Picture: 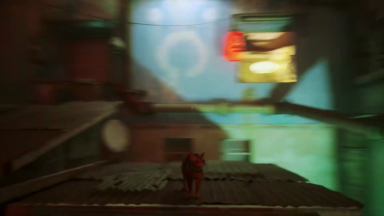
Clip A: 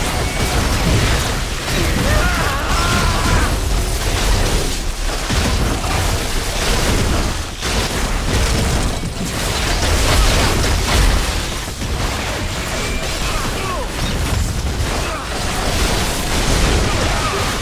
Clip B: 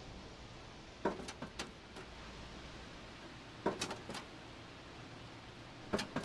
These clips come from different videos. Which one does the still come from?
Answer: B